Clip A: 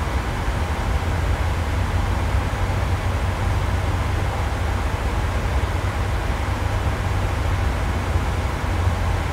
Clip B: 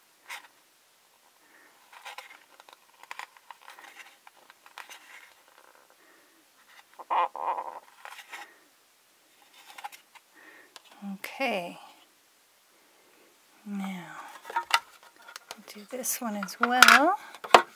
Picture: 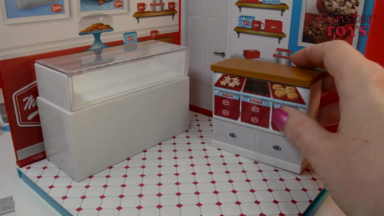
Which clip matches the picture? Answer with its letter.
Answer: B